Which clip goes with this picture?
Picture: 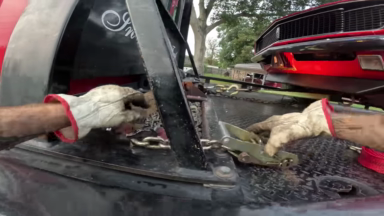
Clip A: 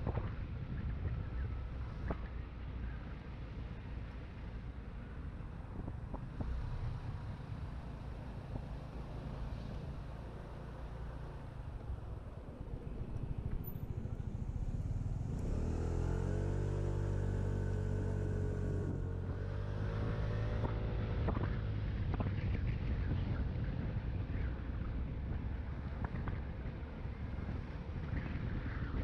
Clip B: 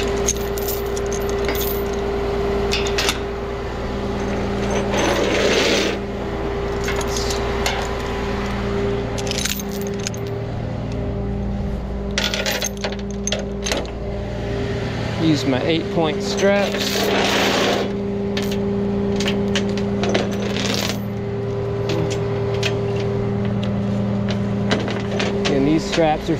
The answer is B